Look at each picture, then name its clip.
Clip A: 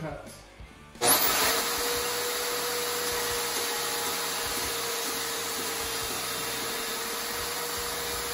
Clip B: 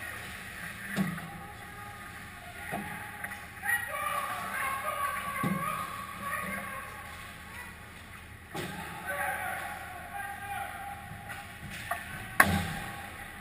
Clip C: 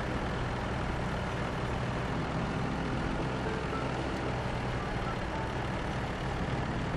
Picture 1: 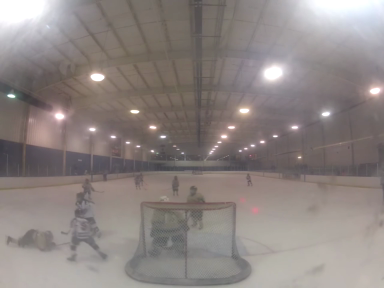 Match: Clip B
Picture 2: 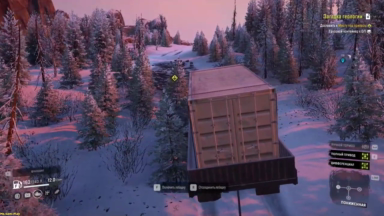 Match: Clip C